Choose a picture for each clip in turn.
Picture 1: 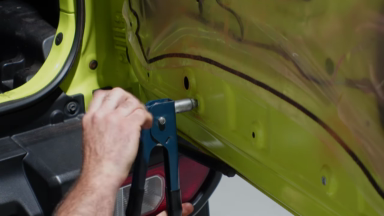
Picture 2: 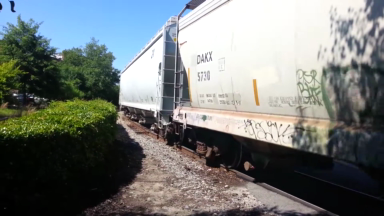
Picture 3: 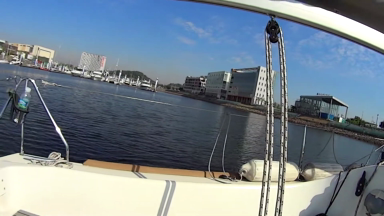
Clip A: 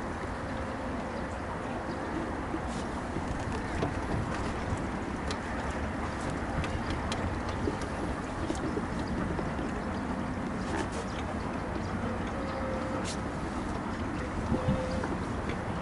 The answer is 3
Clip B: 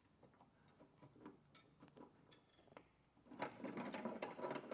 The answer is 1